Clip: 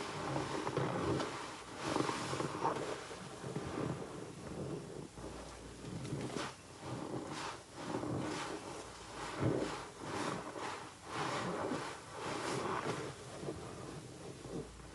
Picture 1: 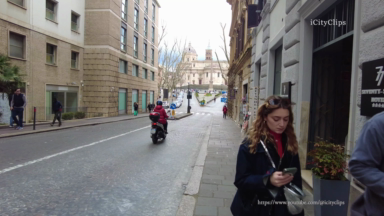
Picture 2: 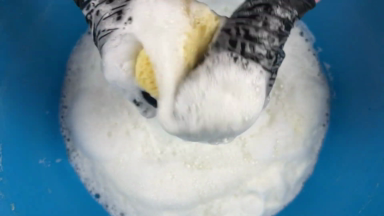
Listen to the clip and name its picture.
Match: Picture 2